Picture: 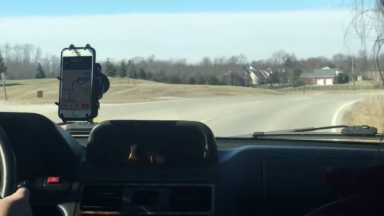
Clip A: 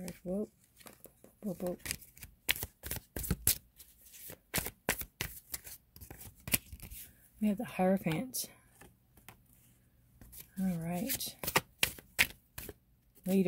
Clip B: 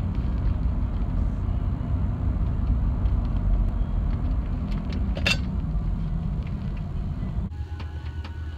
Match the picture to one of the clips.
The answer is B